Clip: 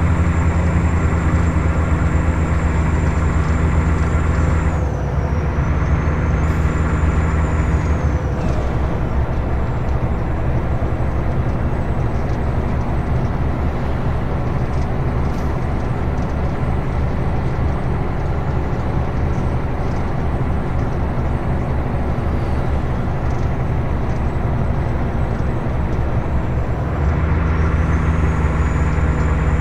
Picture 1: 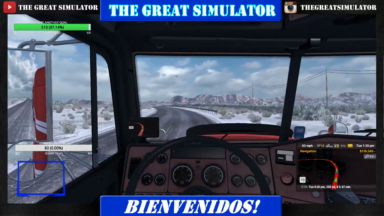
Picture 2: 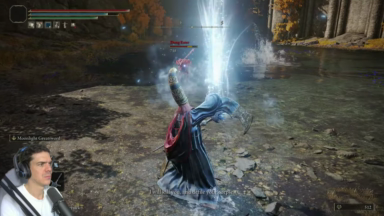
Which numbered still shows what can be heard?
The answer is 1